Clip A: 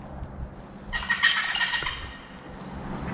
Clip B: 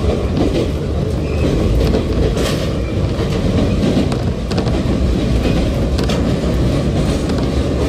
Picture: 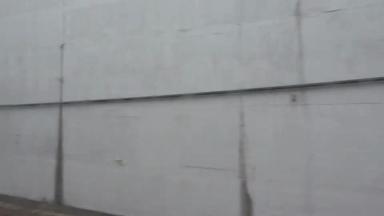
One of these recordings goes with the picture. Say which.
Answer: B